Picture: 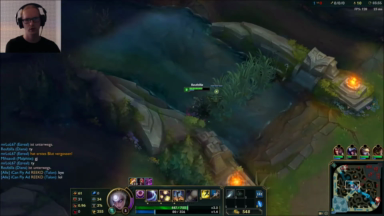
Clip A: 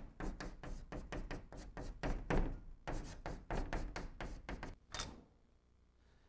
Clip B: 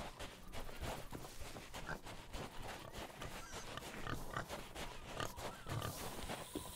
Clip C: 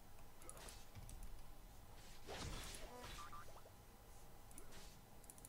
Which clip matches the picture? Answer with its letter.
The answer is C